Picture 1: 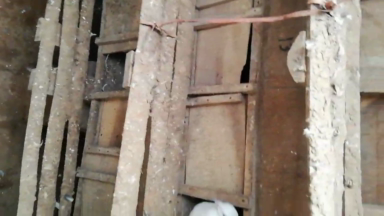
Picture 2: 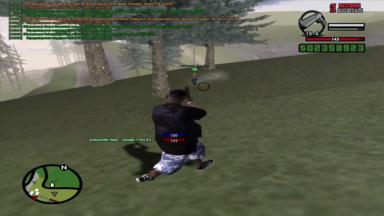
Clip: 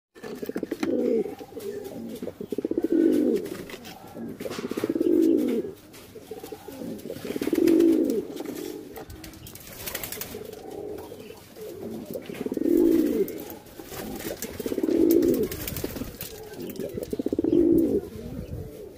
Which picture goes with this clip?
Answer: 1